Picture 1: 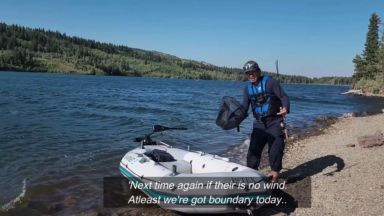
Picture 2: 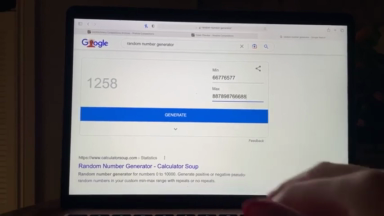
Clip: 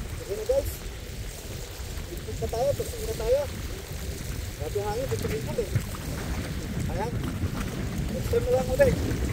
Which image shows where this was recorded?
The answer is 1